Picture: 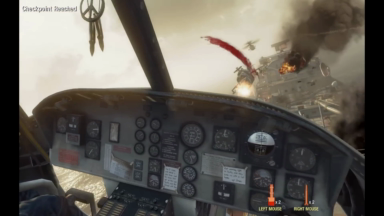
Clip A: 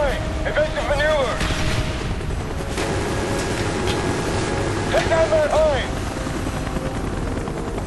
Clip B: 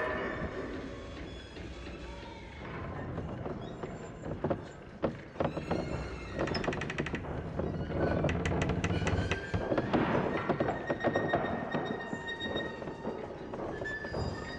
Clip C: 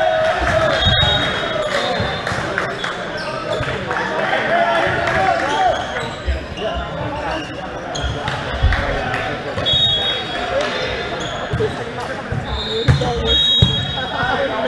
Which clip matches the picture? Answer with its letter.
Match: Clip A